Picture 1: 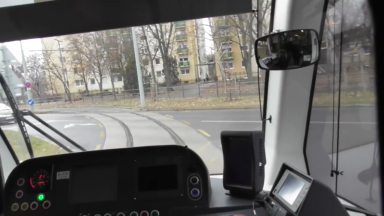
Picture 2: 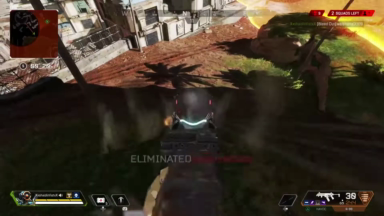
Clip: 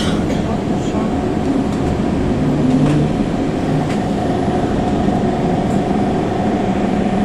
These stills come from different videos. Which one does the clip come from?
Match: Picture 1